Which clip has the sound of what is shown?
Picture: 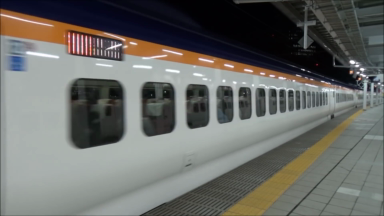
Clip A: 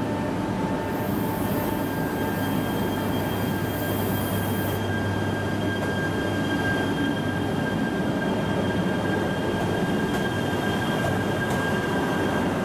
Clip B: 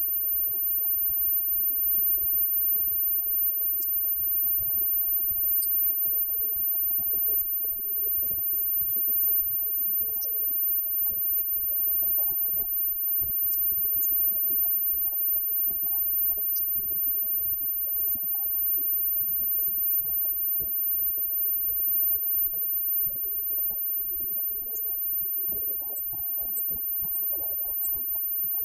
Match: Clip A